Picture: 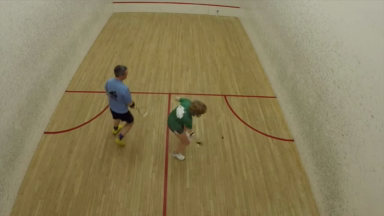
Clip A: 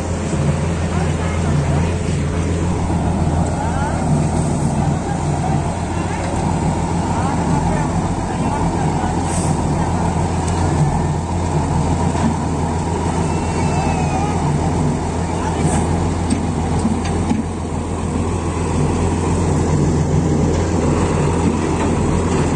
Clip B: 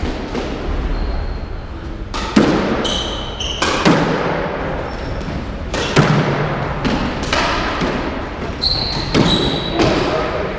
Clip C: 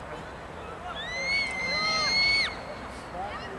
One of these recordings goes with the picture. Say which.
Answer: B